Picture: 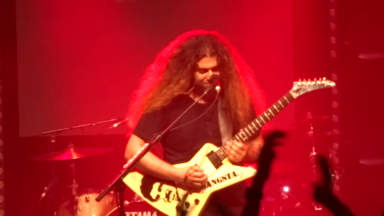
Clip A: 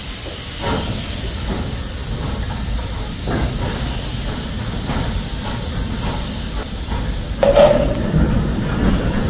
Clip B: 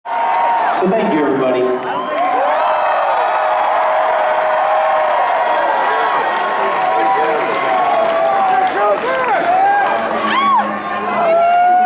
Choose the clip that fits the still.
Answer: B